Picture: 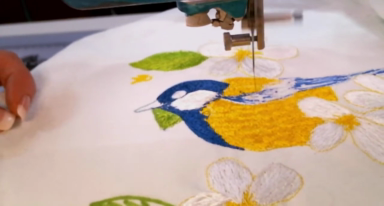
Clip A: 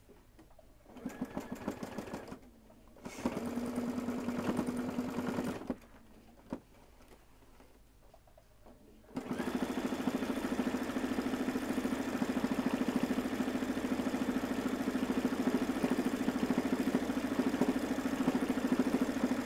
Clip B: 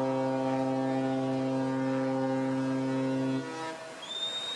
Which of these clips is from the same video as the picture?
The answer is A